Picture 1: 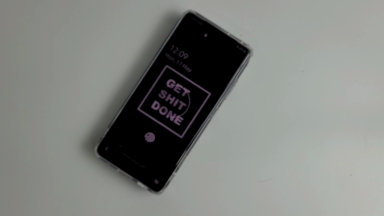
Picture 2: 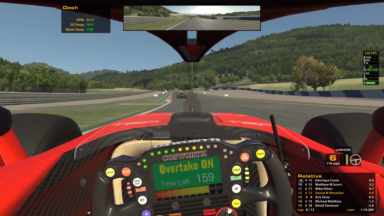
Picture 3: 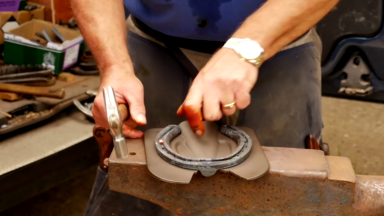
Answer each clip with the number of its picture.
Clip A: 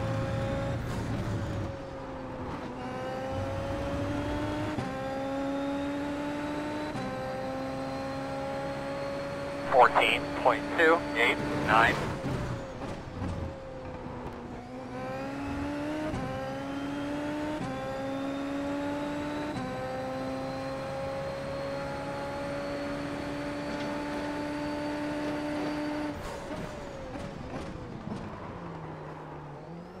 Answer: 2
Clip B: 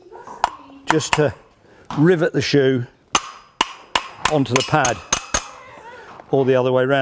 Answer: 3